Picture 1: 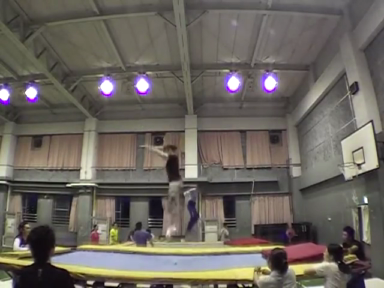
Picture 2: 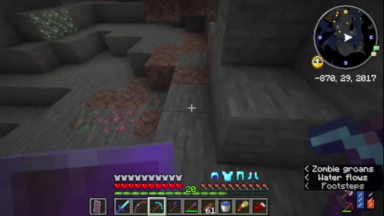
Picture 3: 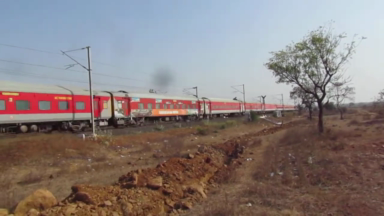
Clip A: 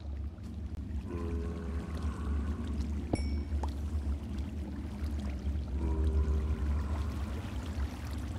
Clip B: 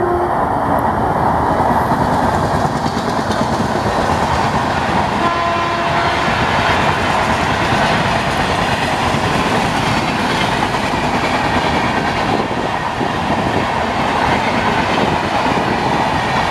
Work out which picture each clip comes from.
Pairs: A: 2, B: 3